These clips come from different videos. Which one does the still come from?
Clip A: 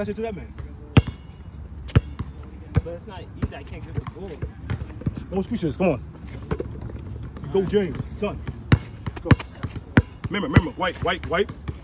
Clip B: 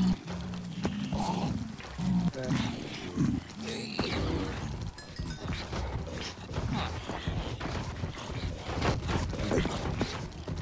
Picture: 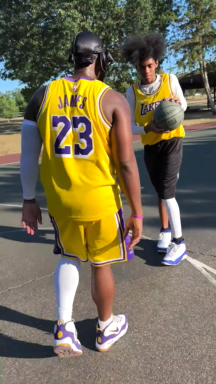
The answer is A